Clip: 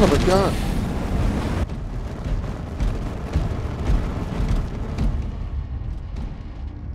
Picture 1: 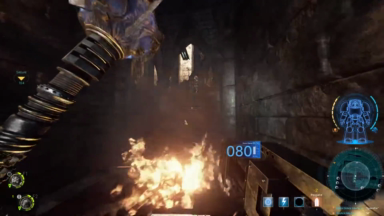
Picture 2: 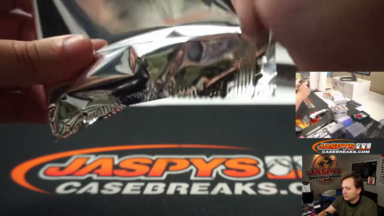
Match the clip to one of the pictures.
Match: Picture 1